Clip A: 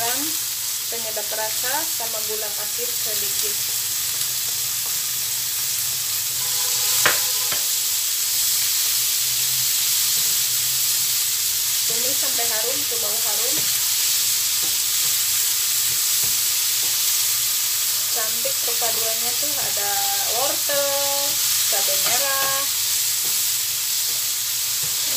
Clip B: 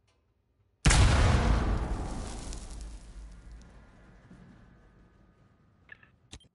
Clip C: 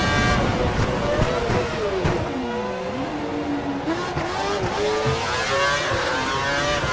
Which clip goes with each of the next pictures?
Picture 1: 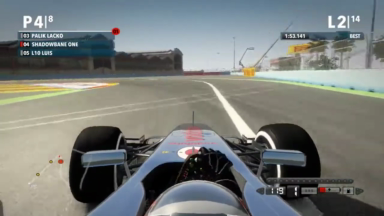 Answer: C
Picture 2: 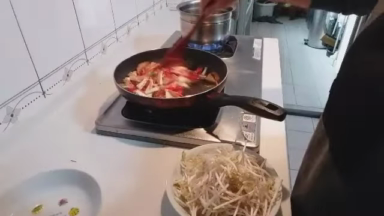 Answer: A